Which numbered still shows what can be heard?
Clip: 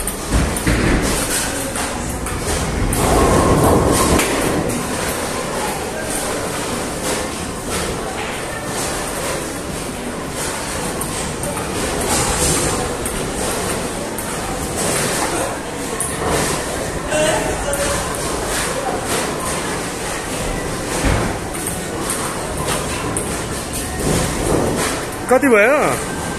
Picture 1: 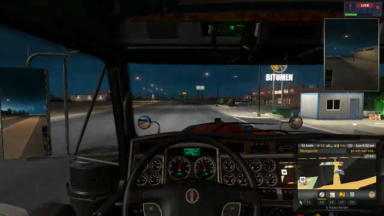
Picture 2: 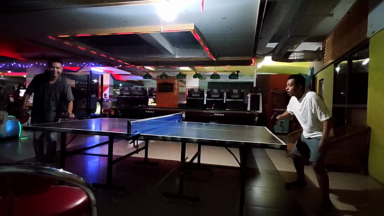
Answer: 2